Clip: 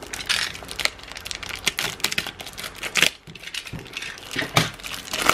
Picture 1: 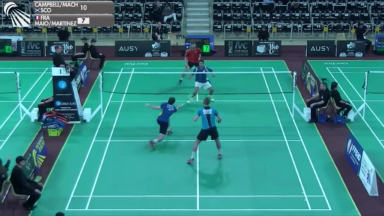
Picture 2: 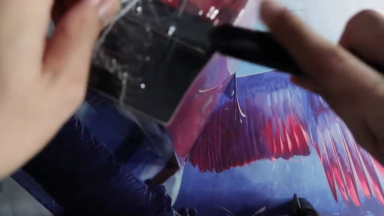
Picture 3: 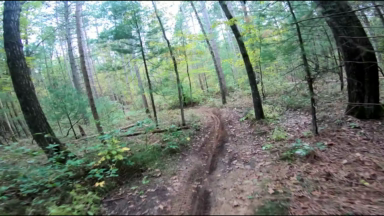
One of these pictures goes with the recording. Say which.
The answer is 2